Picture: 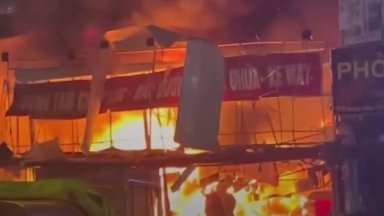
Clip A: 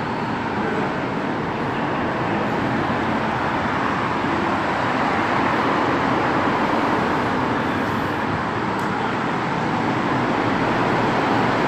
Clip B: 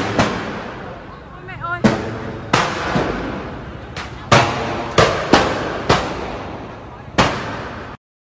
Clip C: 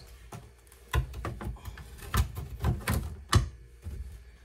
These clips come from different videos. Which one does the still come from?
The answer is B